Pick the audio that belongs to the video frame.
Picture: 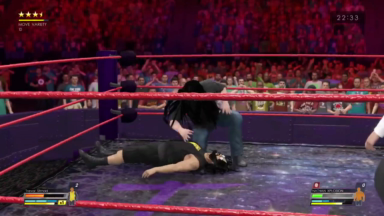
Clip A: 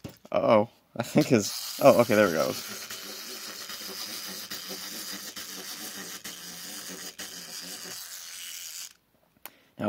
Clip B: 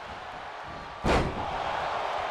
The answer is B